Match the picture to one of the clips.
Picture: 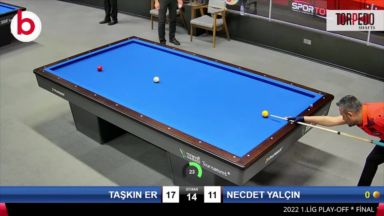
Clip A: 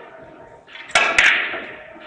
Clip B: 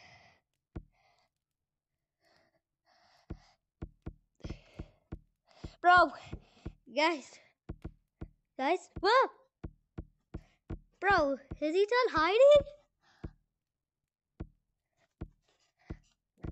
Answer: A